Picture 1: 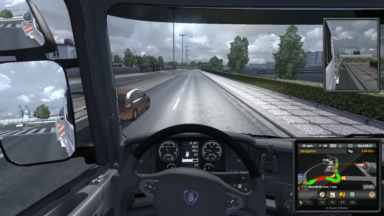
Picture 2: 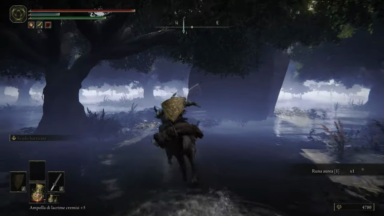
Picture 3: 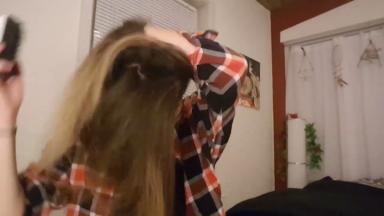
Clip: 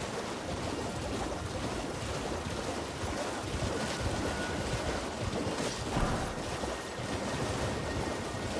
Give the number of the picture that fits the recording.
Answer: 2